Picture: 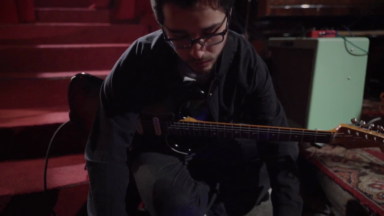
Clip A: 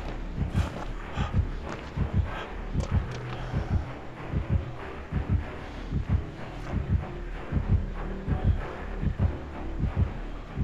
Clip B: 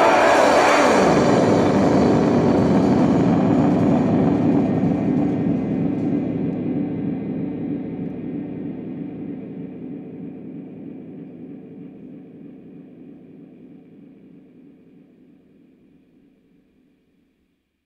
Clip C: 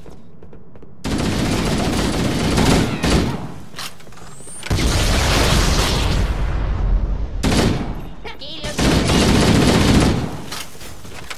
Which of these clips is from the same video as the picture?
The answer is B